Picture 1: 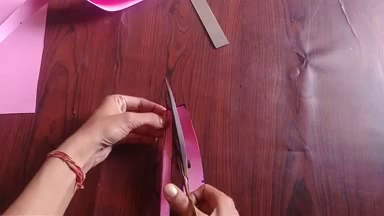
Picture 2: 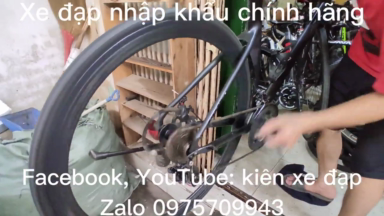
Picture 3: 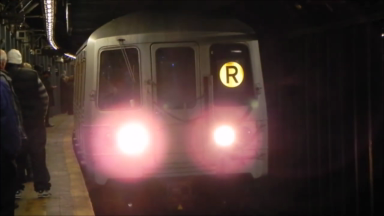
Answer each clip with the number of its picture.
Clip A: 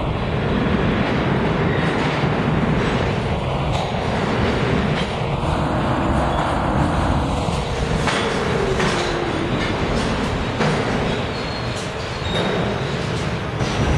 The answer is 3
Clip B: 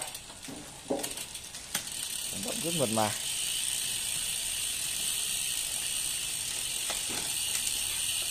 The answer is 2